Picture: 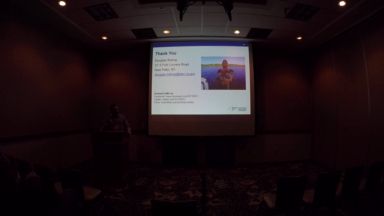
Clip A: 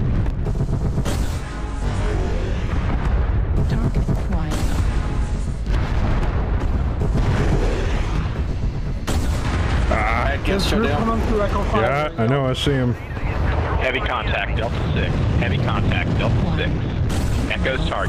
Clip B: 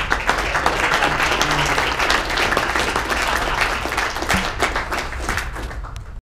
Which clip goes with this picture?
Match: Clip B